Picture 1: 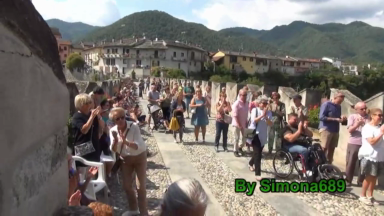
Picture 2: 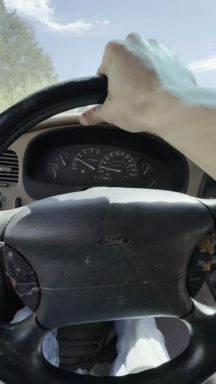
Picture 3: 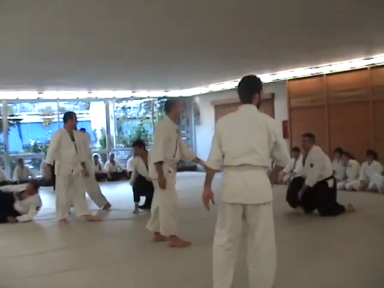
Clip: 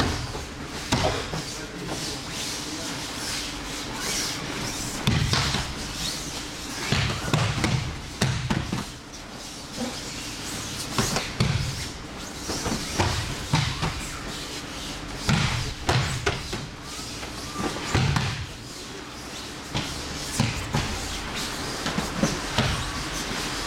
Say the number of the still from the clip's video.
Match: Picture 3